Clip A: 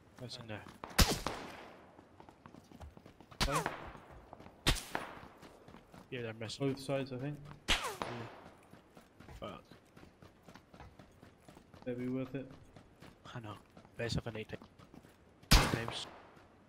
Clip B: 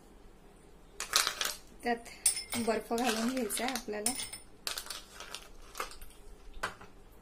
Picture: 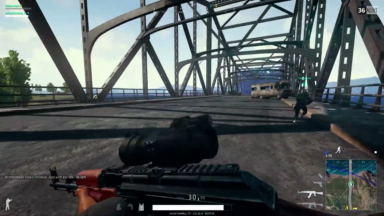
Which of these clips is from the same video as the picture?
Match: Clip A